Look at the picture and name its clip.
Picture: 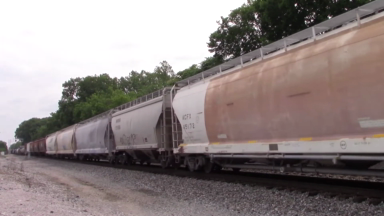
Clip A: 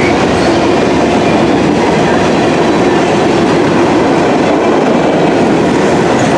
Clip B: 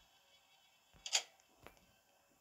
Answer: A